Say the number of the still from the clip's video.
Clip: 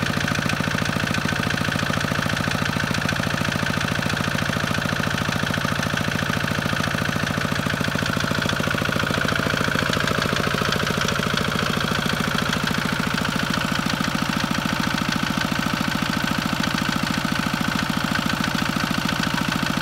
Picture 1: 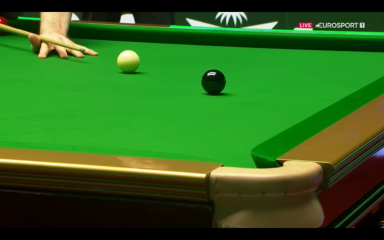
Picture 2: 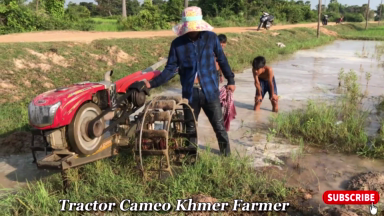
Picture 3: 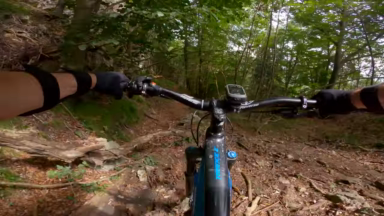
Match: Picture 2